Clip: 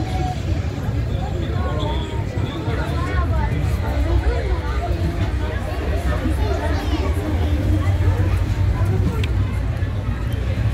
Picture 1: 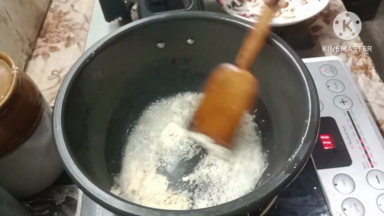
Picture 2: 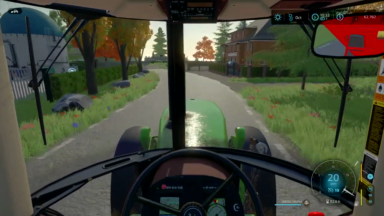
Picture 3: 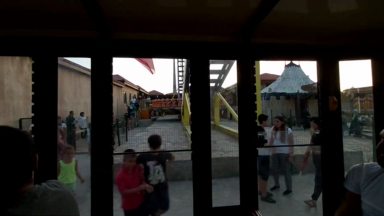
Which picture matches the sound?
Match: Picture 3